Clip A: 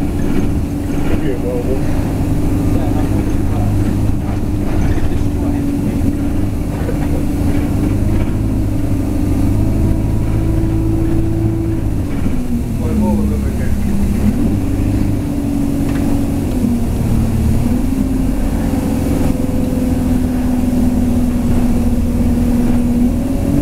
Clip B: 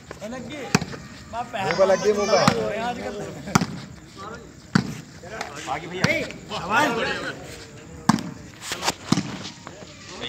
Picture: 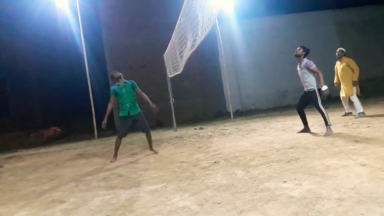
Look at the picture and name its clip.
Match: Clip B